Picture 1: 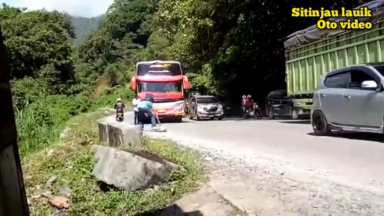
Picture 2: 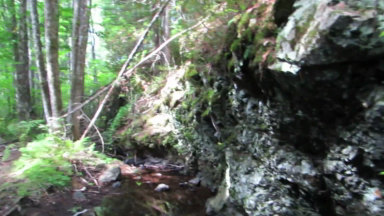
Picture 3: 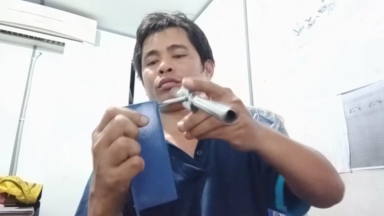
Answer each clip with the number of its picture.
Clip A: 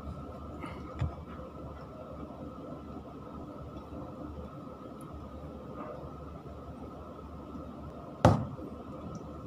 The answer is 3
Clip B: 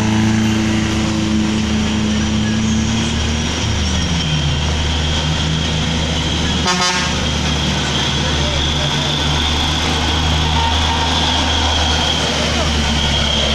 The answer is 1